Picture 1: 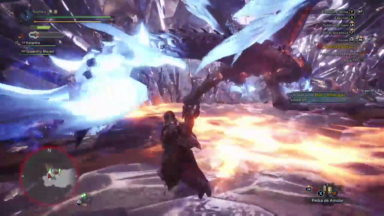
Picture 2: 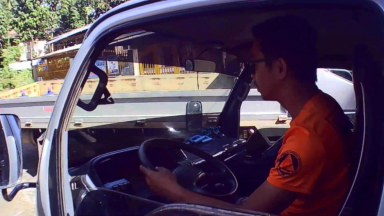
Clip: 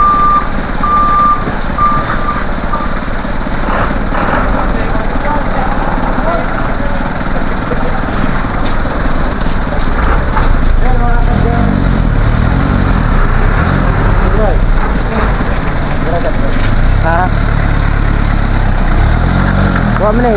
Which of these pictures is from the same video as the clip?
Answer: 2